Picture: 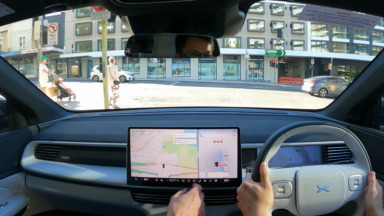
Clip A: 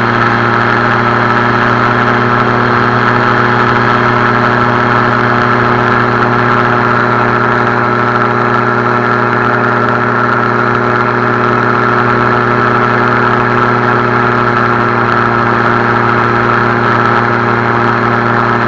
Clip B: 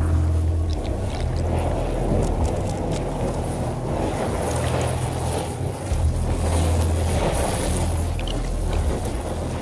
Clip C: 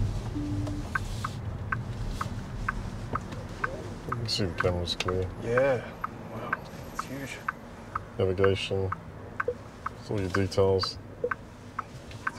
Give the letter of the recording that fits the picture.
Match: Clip C